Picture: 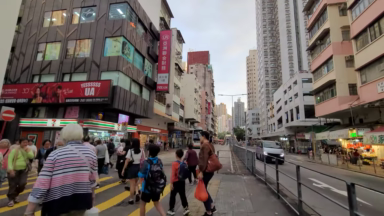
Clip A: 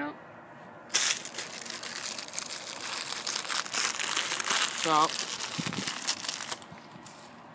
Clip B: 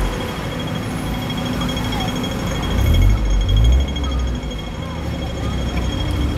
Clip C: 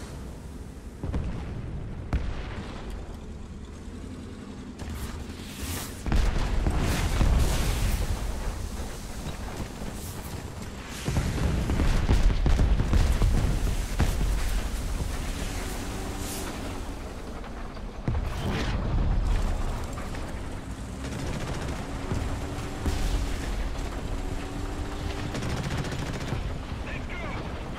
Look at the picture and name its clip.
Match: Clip B